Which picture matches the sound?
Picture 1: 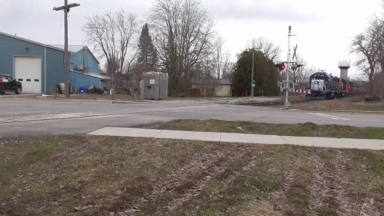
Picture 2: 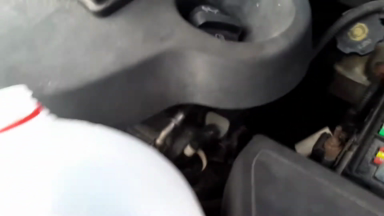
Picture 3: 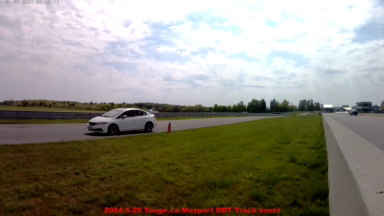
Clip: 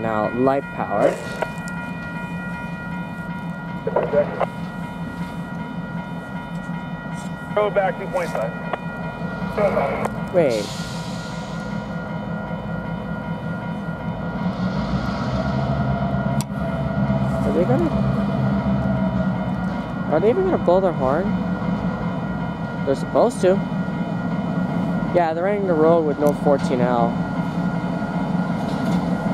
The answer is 1